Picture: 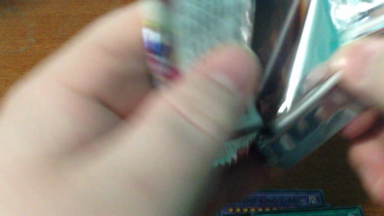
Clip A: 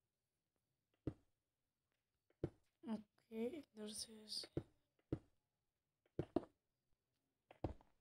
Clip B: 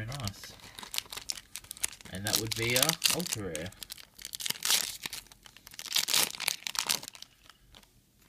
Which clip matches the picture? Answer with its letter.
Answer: B